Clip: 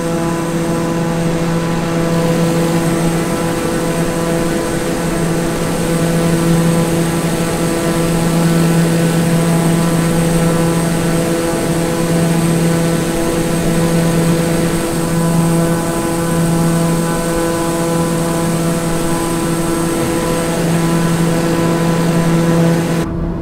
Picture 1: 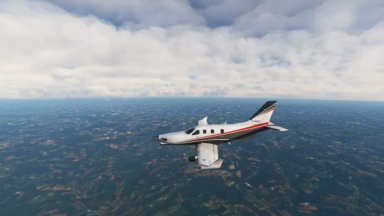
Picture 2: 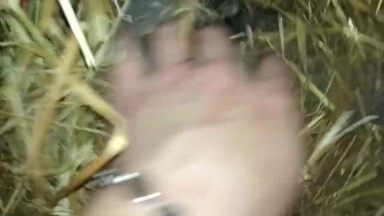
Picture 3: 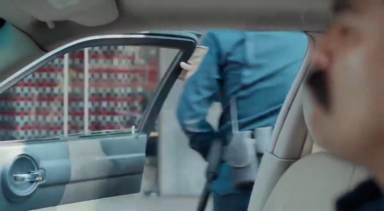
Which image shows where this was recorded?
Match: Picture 1